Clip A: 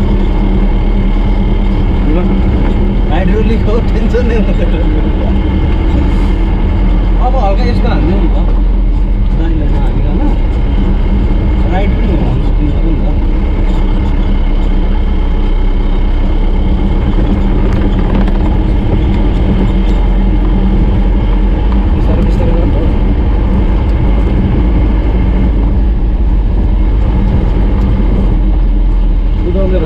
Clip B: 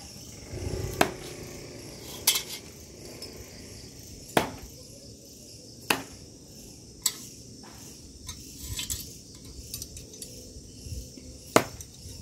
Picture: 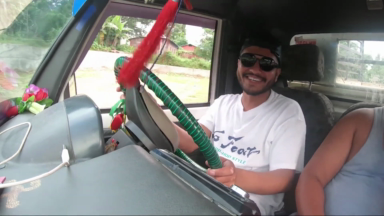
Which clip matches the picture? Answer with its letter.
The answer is A